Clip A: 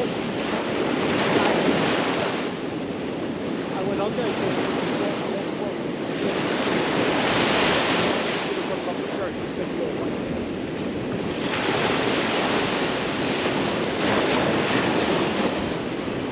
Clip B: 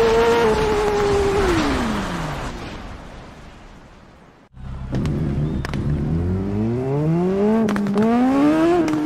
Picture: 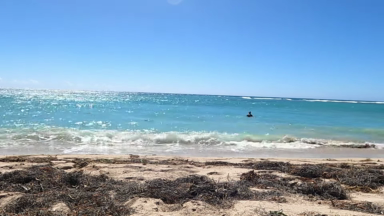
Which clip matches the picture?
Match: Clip A